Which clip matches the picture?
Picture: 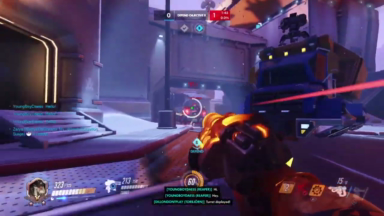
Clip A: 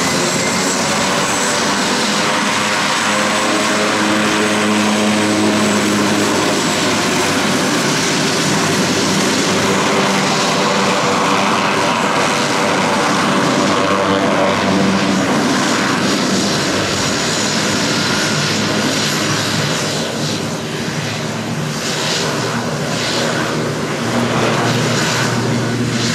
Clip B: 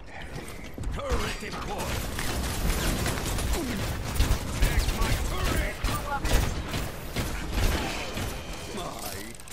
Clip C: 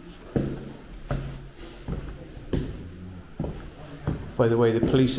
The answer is B